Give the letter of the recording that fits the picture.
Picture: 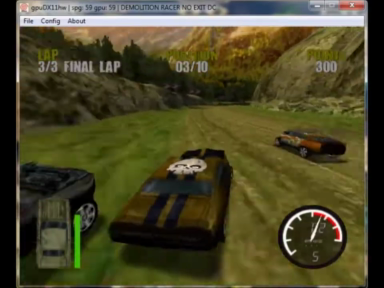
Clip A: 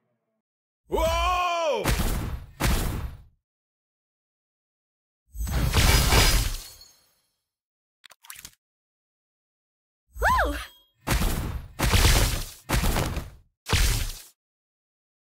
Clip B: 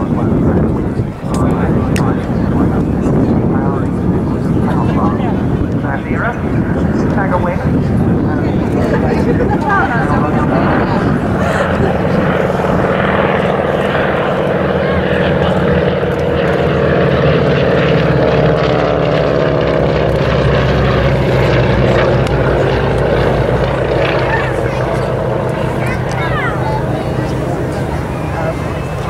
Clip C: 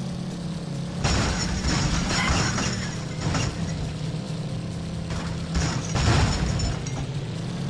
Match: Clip C